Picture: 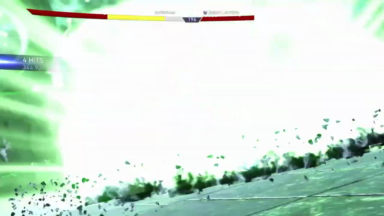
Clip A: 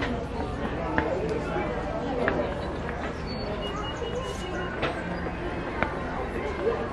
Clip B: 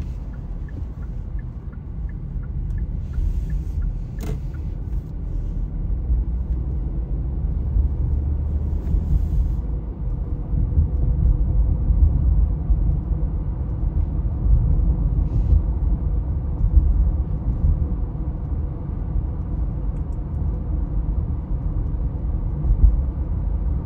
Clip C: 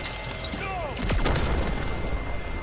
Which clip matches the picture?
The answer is C